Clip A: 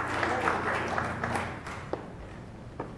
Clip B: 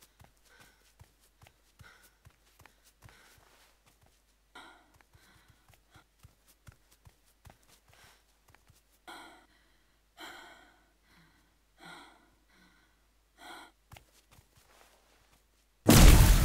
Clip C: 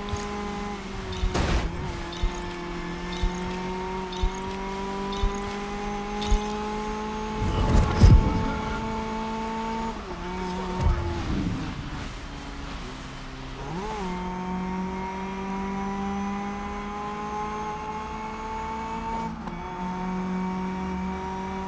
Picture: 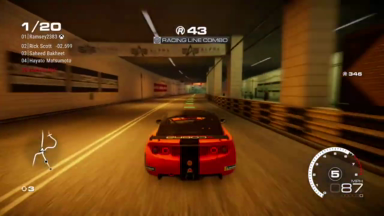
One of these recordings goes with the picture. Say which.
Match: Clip C